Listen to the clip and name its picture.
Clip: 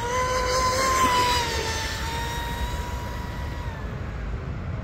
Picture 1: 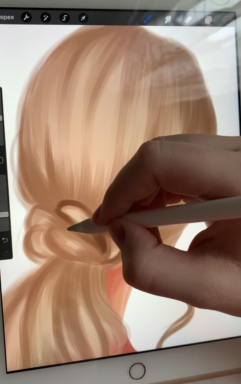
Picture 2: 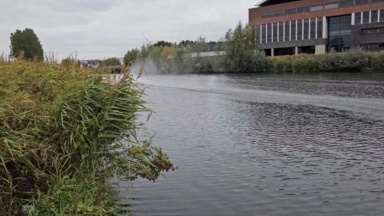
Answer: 2